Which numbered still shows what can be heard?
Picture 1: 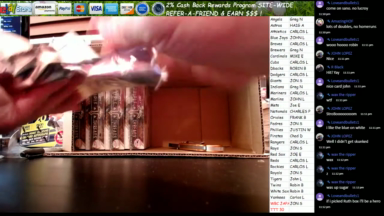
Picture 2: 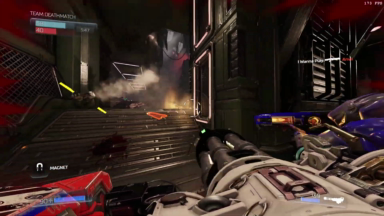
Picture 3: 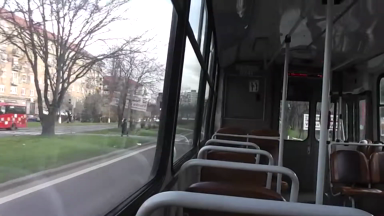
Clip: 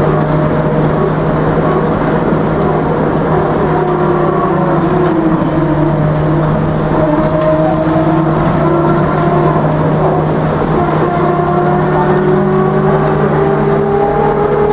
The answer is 3